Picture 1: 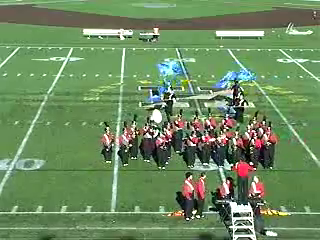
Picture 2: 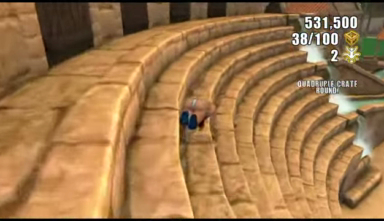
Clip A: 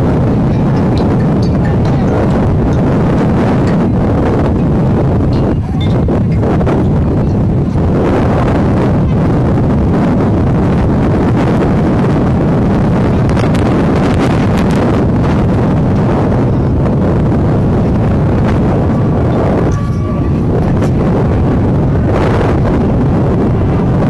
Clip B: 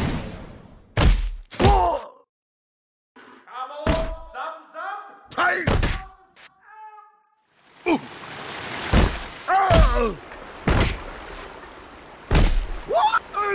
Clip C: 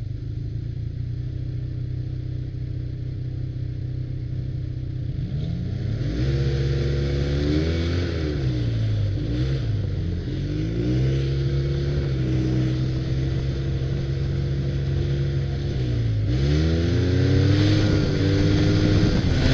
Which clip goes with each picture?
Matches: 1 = A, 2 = B